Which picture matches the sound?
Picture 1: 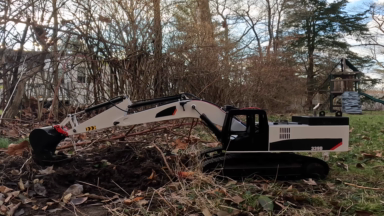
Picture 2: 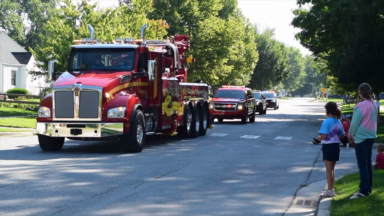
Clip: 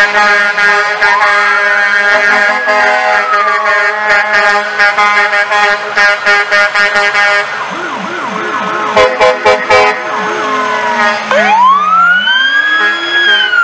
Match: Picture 2